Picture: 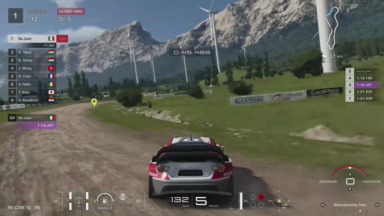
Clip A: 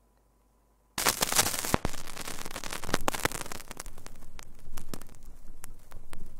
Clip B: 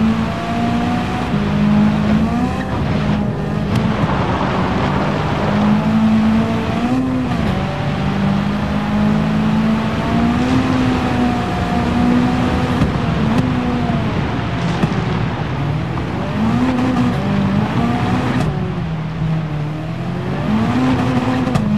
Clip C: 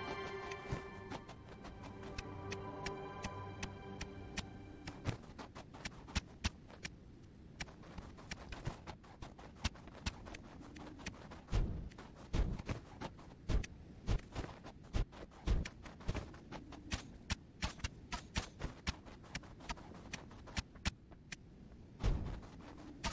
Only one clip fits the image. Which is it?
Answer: B